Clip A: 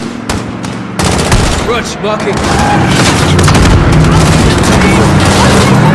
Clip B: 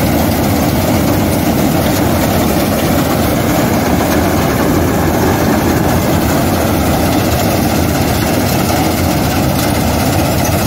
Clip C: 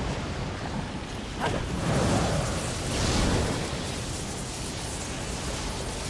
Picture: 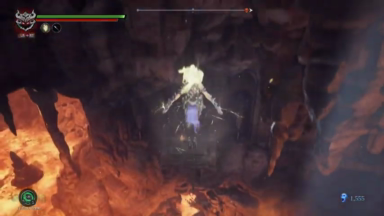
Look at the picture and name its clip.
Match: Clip C